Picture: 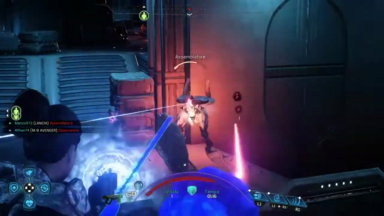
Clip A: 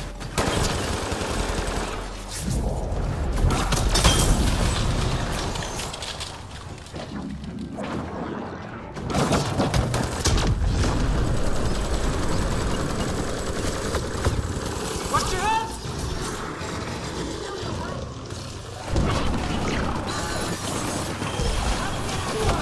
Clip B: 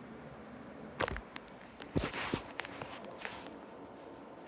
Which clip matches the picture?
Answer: A